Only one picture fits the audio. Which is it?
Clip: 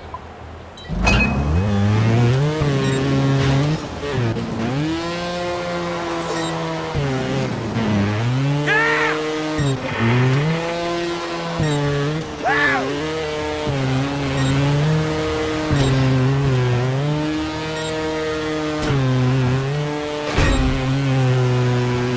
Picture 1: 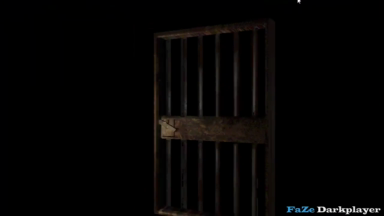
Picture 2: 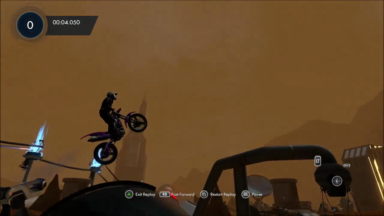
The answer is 2